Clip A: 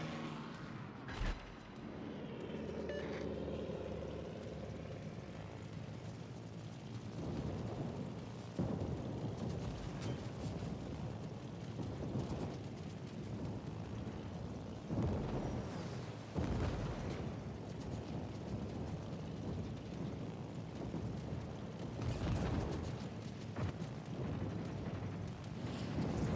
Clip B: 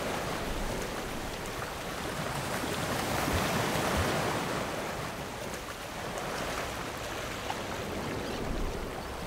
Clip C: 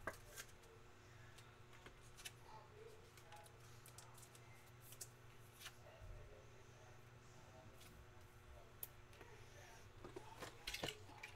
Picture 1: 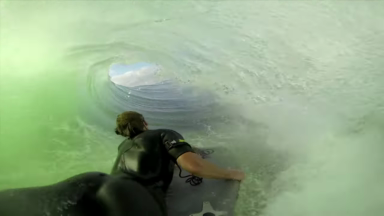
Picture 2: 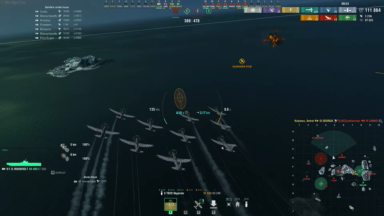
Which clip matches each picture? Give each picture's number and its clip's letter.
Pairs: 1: B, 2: A